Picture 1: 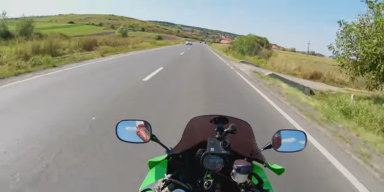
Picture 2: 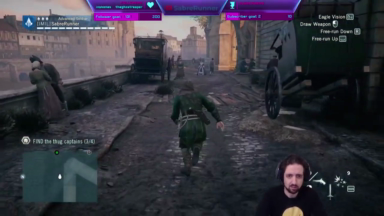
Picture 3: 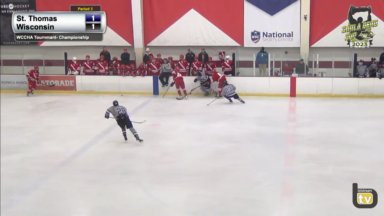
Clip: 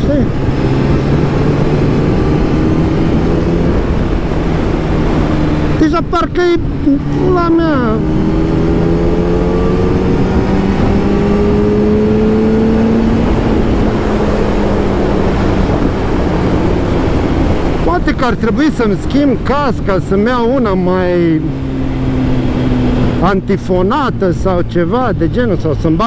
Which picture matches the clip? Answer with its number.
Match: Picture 1